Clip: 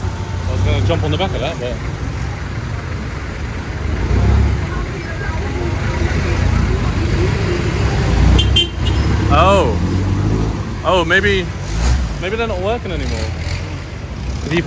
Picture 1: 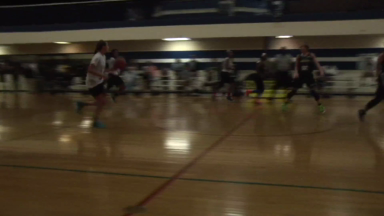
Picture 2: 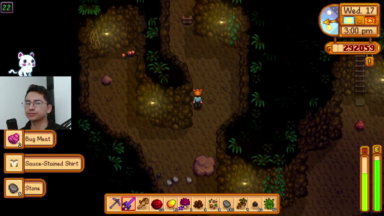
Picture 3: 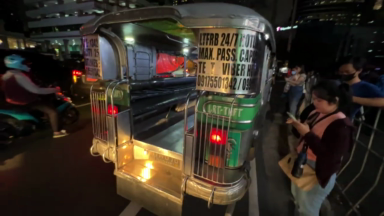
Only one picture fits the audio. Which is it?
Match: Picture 3